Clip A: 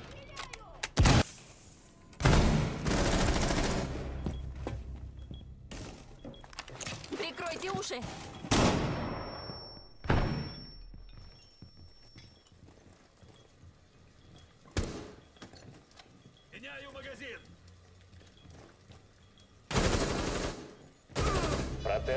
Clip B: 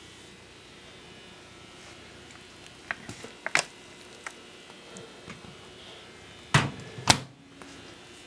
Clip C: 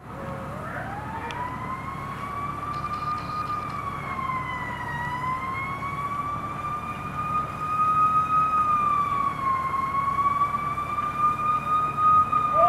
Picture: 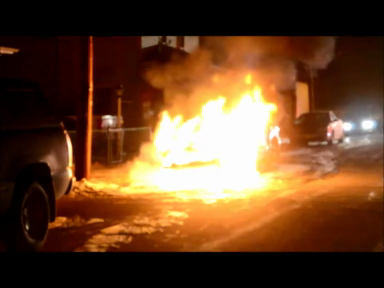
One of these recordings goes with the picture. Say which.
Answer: C